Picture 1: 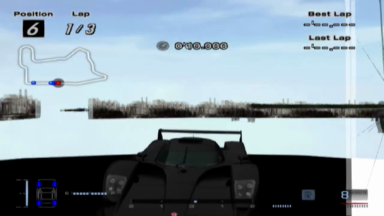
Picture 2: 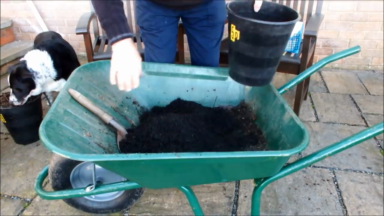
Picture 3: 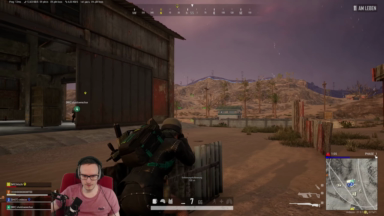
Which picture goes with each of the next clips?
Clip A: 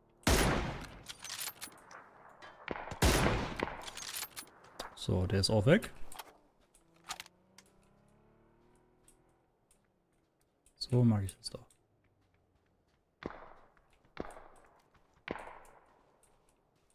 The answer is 3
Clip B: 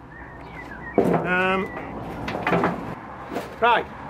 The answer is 2